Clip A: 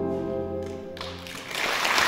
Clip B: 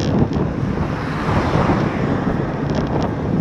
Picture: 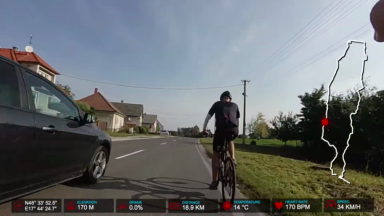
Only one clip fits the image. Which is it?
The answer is B